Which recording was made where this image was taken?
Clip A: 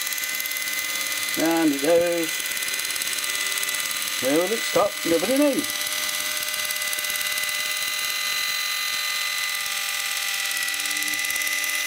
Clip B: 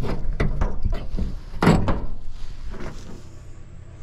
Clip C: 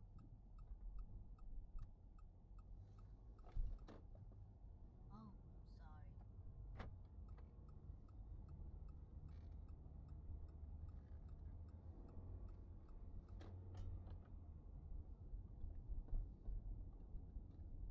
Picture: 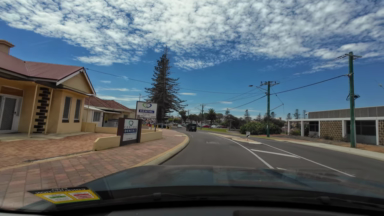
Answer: C